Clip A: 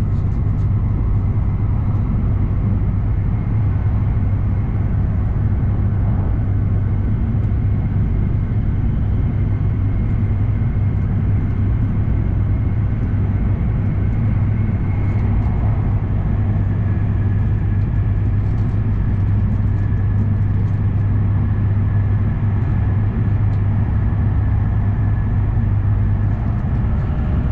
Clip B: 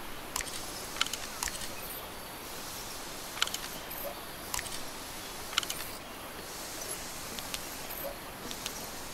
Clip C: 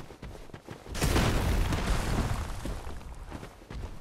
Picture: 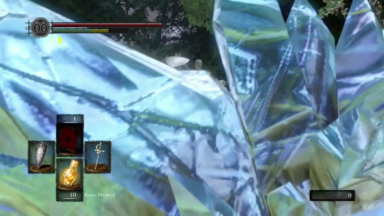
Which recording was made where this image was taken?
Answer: C